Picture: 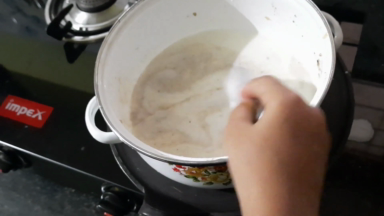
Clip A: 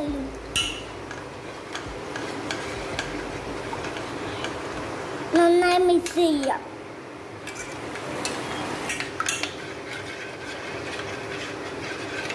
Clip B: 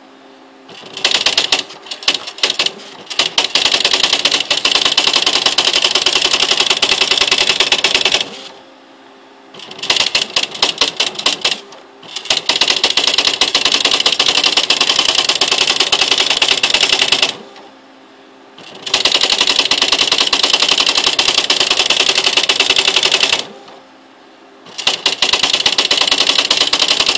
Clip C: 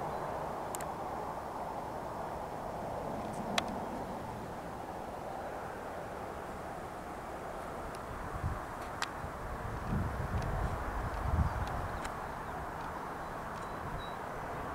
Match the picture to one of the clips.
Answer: A